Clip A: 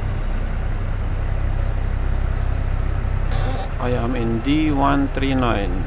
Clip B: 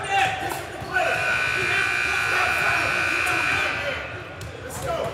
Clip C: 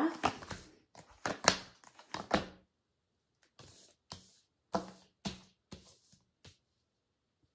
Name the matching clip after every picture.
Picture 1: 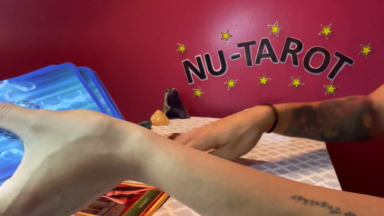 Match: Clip C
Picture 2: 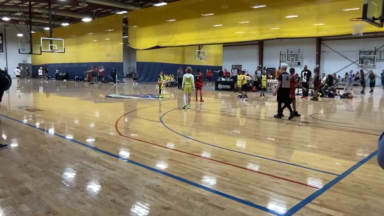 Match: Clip B